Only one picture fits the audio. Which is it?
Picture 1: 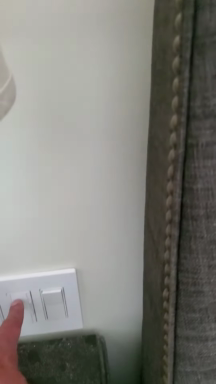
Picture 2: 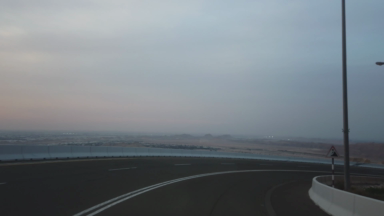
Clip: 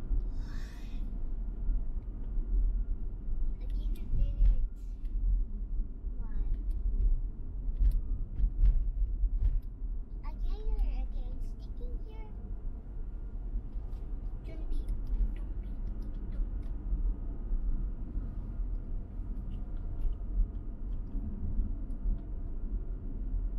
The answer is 2